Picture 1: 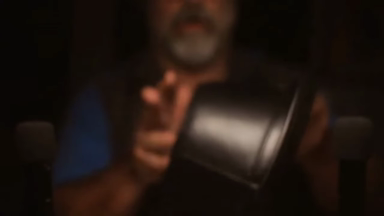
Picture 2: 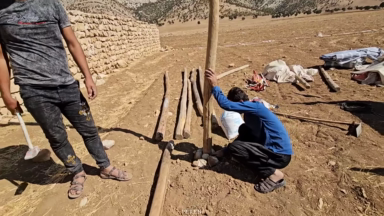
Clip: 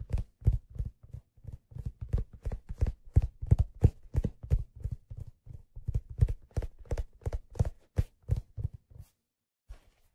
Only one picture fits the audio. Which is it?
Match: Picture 1